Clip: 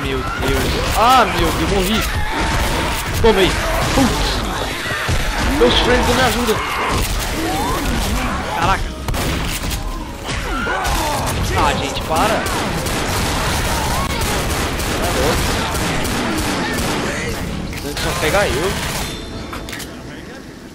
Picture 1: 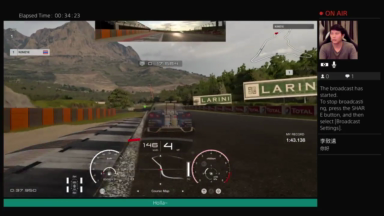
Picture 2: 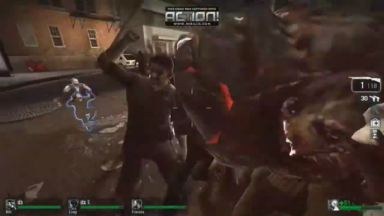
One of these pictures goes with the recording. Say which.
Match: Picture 2